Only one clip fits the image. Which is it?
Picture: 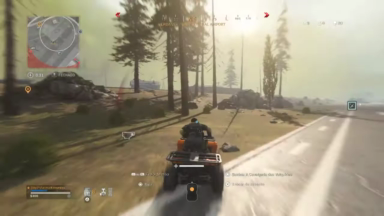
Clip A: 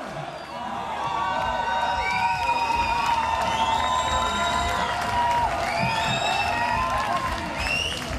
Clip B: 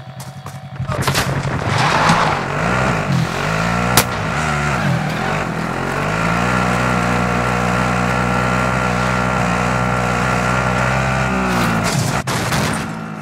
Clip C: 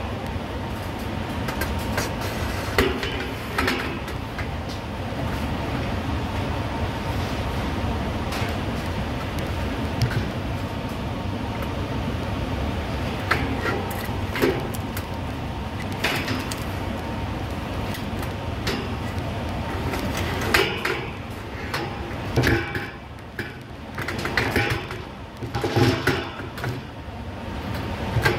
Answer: B